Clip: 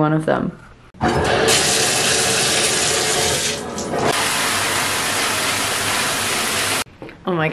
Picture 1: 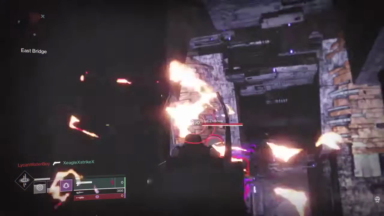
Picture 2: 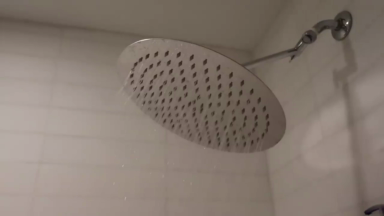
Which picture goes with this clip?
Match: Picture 2